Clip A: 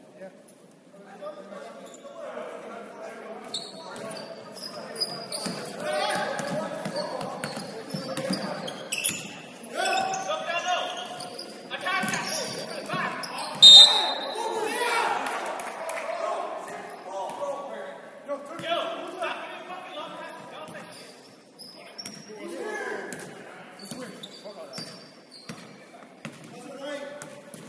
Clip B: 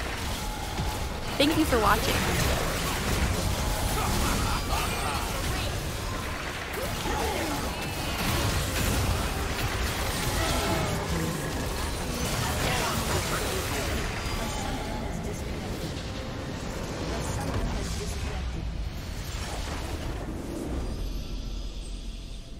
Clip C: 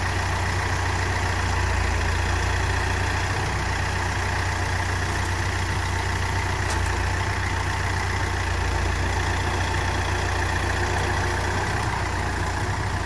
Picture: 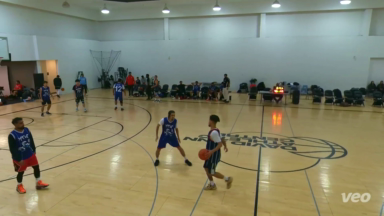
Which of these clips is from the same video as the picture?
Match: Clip A